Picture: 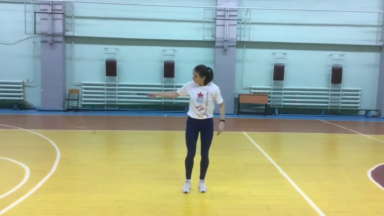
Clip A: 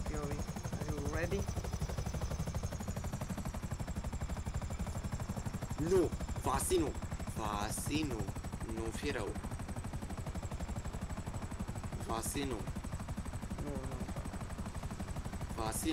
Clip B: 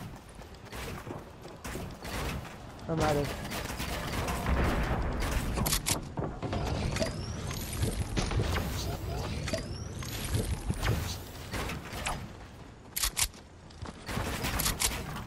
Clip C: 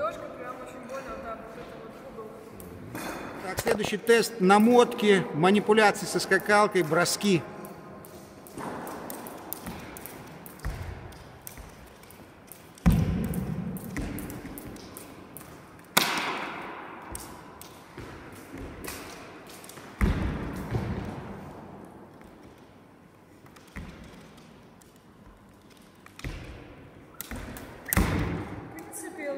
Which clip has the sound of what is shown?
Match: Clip C